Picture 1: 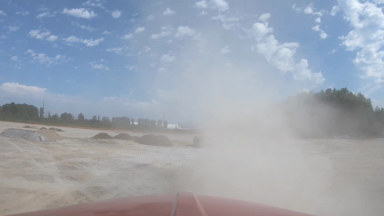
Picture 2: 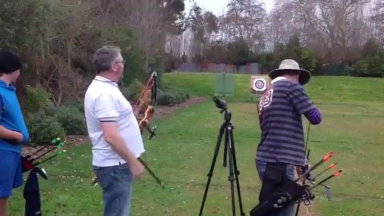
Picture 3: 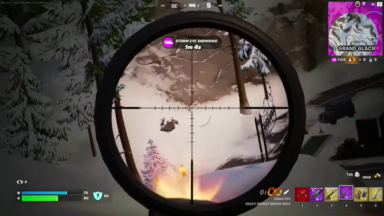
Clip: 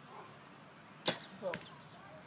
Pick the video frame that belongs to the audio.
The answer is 2